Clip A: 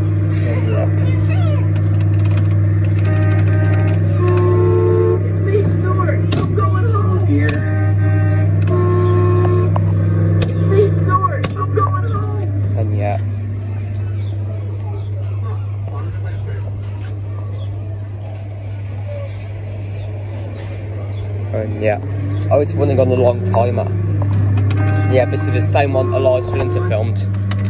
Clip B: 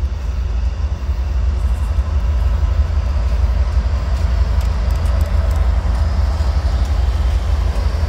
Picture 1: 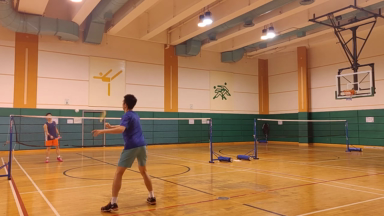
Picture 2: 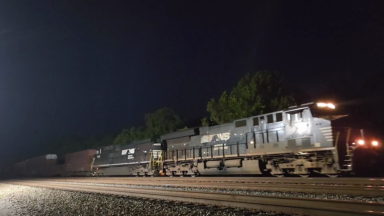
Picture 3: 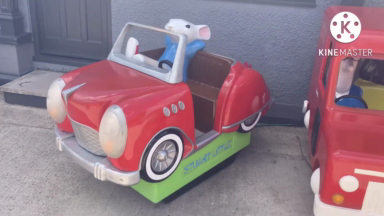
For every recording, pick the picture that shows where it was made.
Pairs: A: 3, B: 2